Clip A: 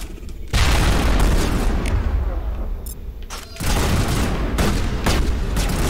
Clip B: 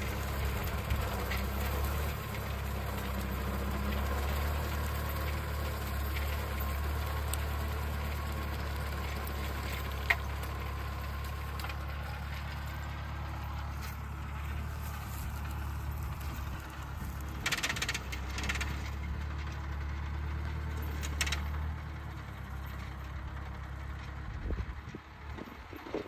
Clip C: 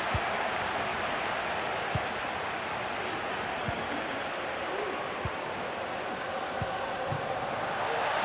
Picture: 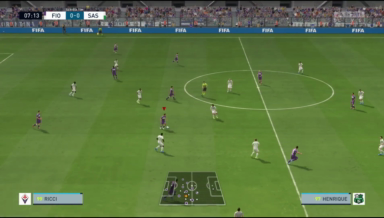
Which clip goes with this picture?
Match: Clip C